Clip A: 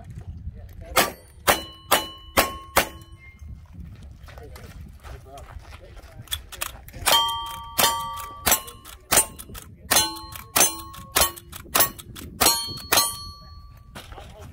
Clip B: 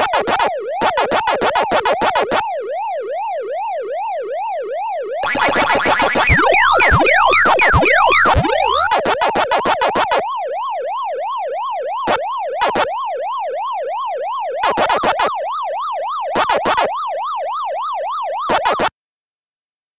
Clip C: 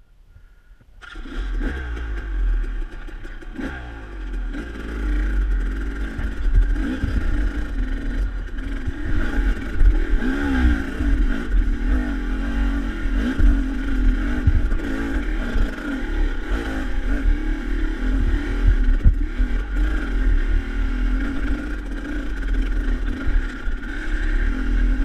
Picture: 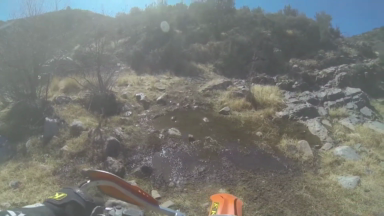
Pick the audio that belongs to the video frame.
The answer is C